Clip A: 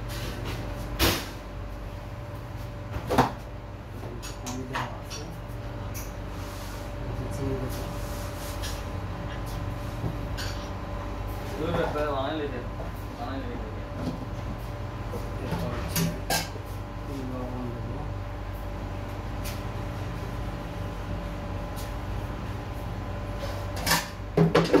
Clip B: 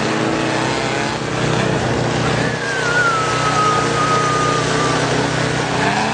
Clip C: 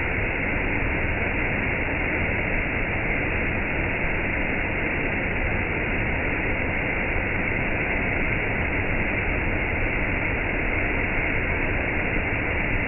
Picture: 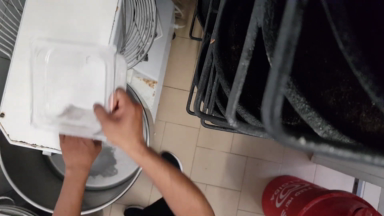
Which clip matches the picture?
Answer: A